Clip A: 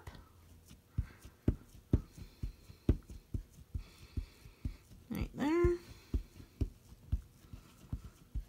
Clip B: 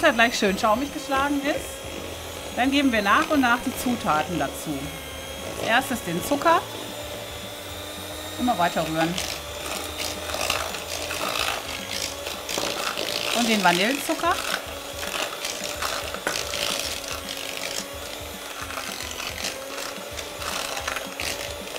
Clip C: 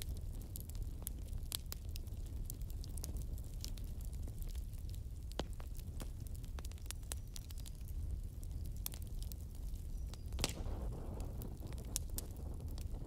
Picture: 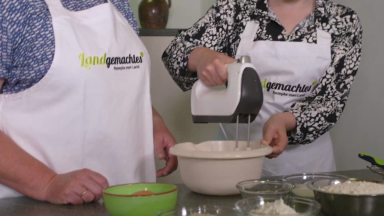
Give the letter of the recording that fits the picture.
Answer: B